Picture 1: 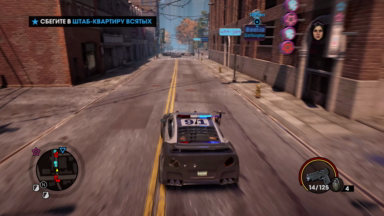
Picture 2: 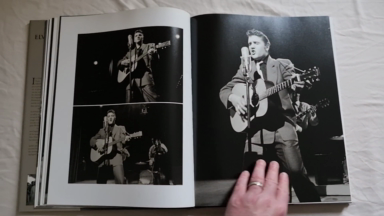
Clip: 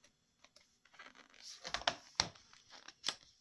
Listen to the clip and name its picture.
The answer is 2